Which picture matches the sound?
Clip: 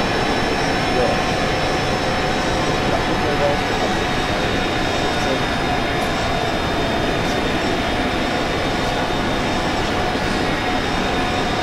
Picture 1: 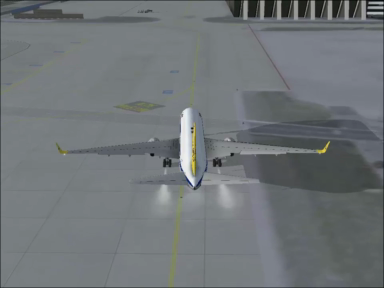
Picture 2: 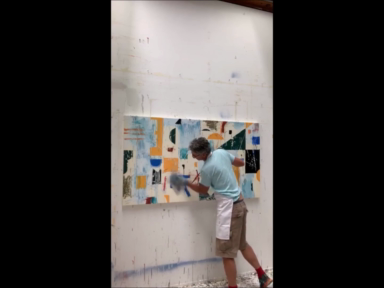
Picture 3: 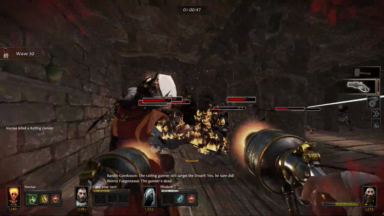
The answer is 1